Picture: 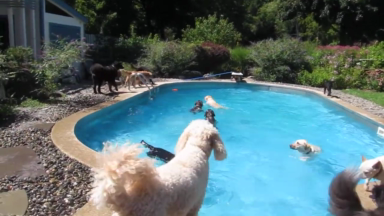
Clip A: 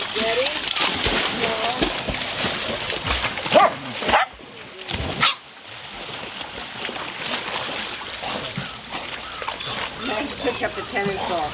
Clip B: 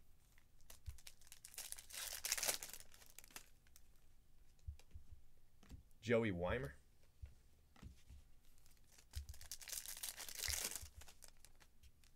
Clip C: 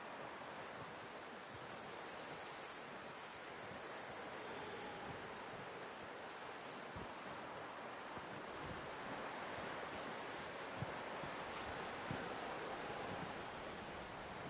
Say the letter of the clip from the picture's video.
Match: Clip A